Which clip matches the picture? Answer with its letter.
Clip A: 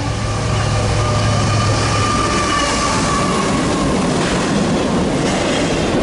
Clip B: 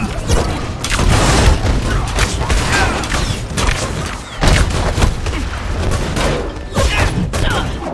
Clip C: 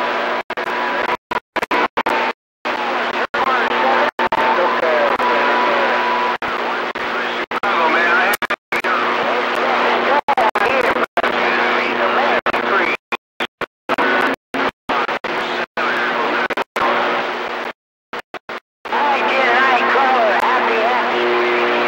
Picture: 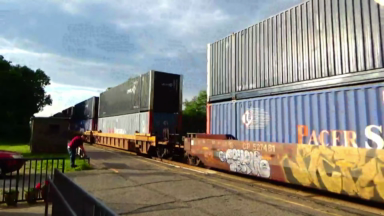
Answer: A